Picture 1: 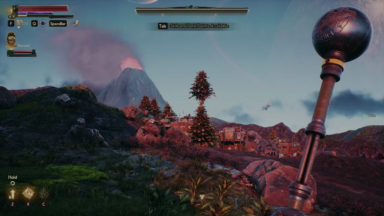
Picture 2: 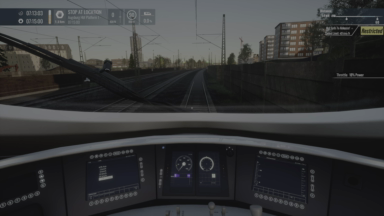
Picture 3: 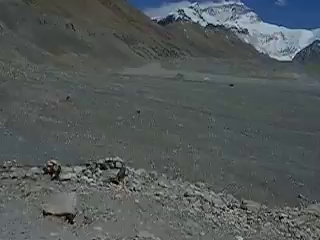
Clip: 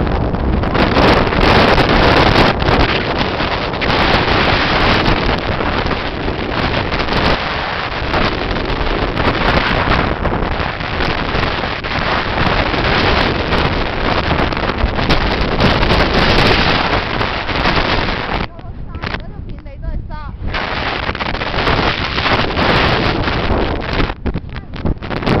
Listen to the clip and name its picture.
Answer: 3